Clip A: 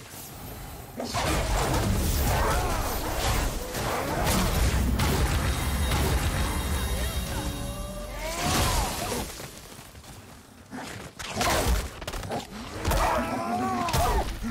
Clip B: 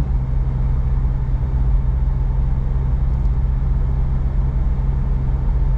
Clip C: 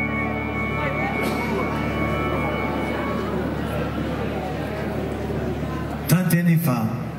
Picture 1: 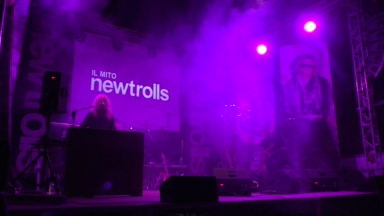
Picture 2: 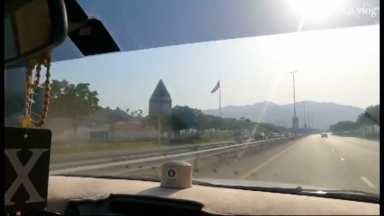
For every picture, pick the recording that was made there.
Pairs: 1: C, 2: B